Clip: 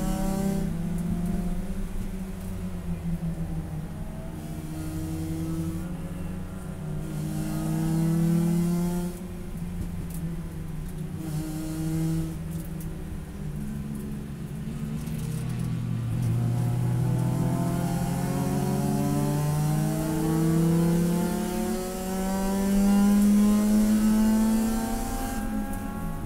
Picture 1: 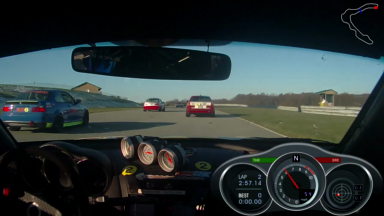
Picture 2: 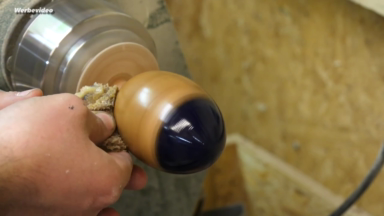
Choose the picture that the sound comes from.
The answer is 1